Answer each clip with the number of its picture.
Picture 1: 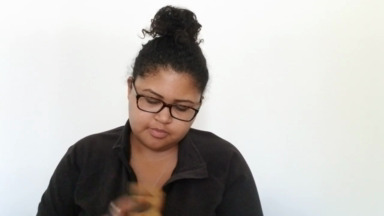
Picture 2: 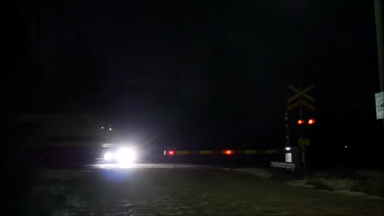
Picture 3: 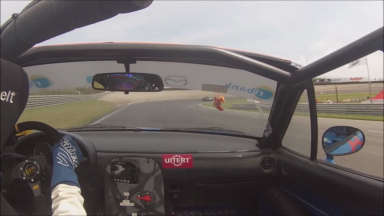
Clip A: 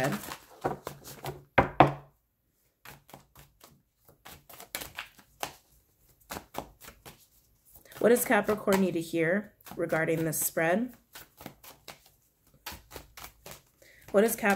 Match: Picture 1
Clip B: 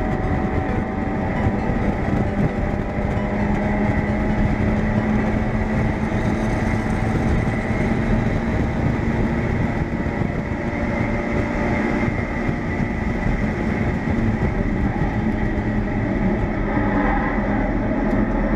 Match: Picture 3